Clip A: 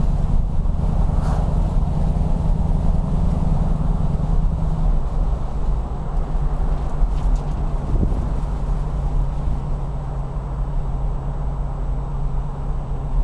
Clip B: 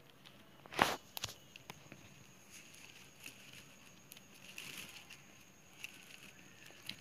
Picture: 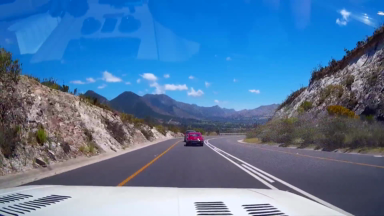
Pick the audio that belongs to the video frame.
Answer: A